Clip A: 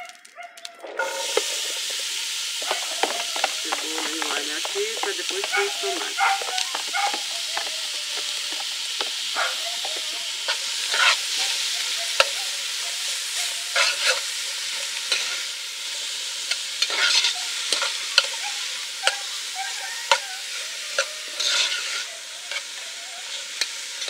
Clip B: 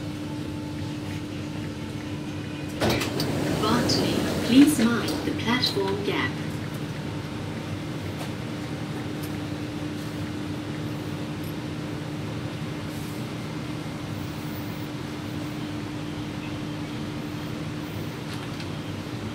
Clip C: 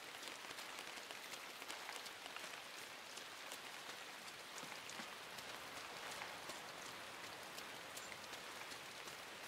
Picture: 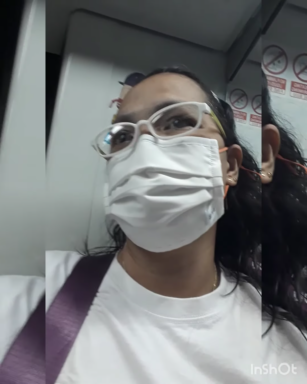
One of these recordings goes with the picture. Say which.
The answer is B